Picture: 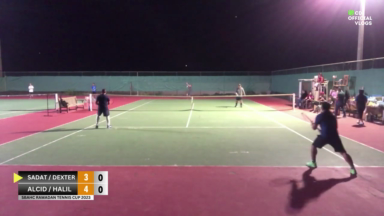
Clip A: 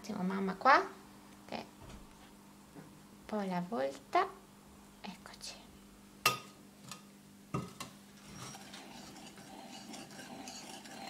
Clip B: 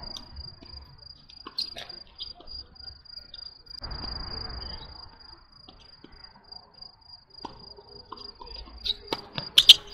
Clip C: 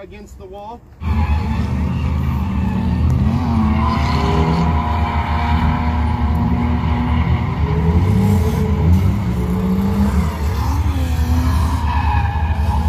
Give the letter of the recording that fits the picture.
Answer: B